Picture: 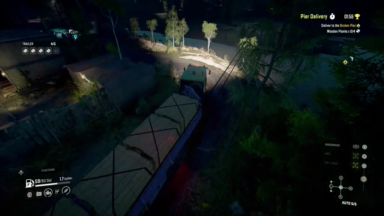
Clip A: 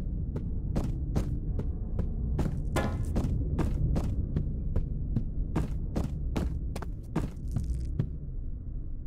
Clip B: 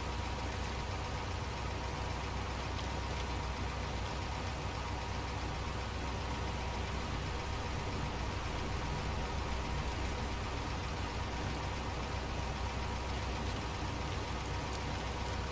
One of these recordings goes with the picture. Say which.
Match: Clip B